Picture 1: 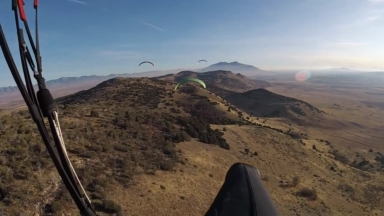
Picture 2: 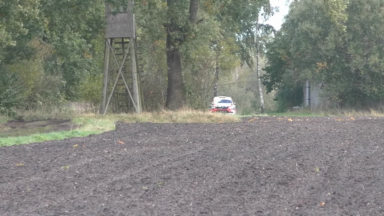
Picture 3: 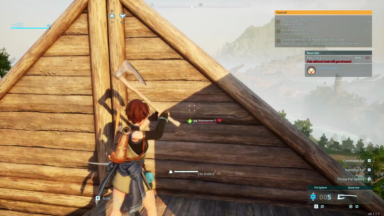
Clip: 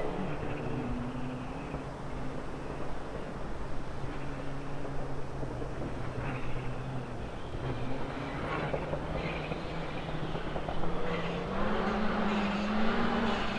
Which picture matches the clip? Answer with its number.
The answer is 2